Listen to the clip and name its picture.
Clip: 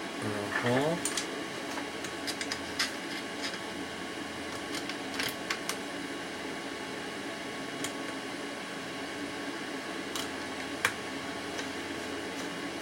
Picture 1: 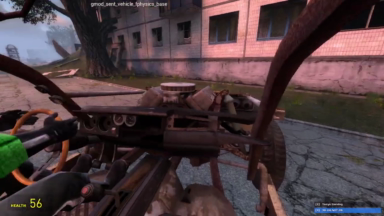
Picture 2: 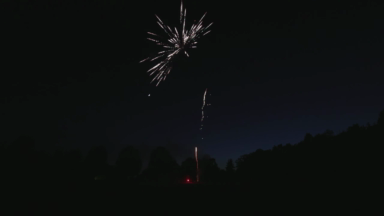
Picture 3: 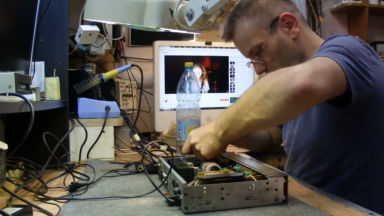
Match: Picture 3